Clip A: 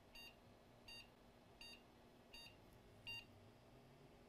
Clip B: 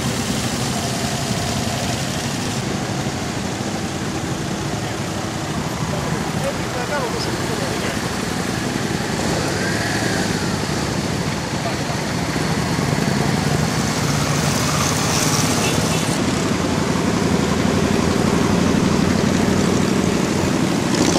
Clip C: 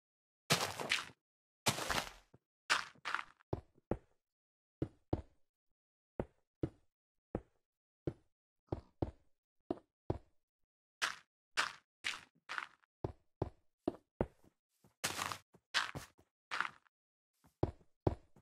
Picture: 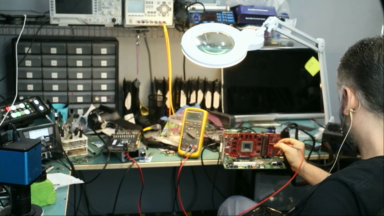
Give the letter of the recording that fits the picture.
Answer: A